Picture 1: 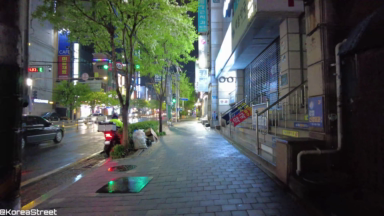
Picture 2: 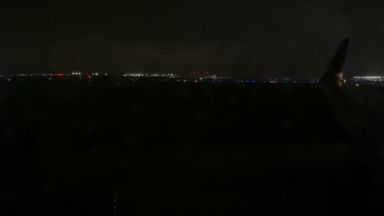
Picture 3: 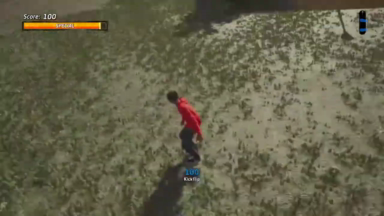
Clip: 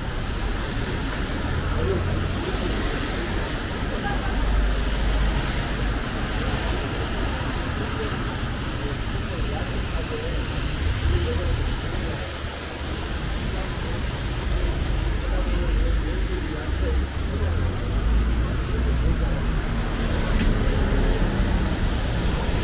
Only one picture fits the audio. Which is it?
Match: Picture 1